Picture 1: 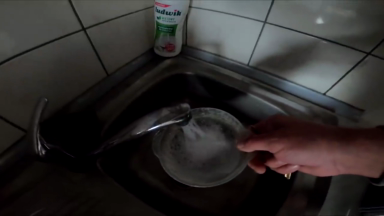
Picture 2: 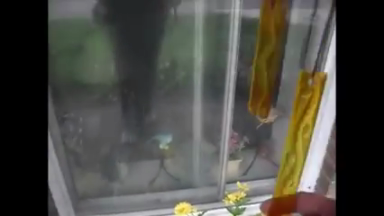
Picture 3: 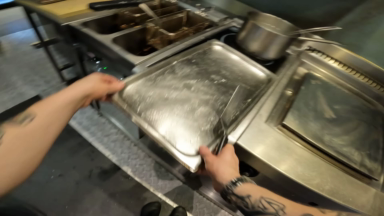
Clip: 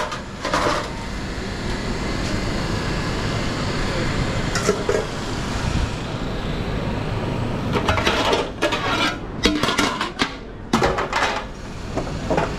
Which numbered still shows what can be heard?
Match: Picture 3